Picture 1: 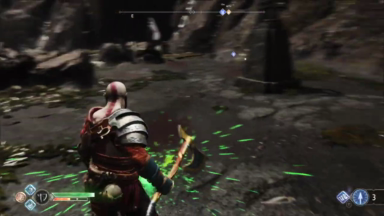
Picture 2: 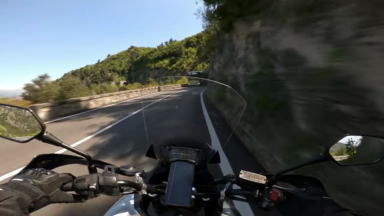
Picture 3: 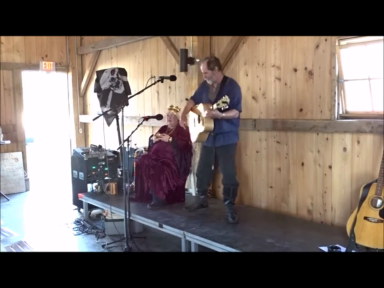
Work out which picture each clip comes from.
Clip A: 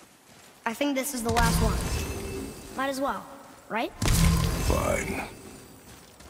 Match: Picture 1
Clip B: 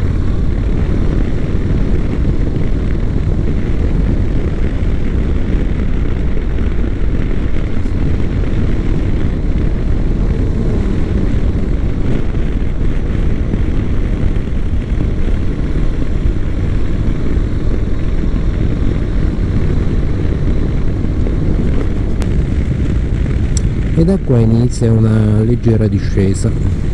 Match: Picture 2